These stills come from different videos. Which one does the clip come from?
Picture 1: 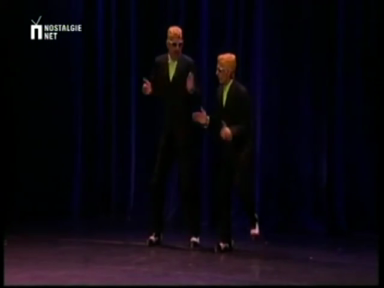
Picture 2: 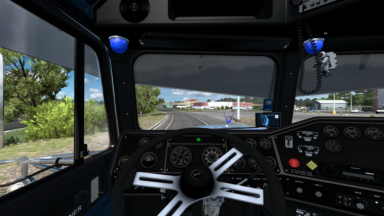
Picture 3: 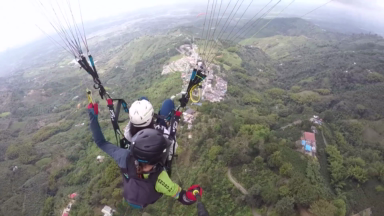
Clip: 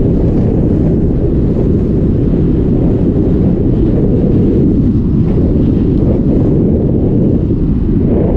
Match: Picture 3